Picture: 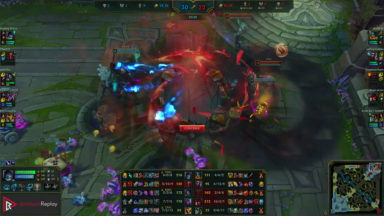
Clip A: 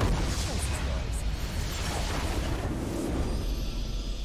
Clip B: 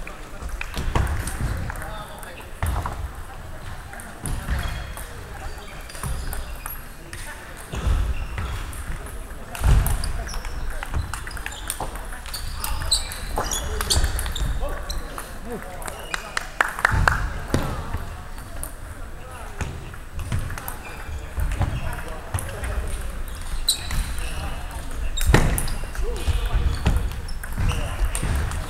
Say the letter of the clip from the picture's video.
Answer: A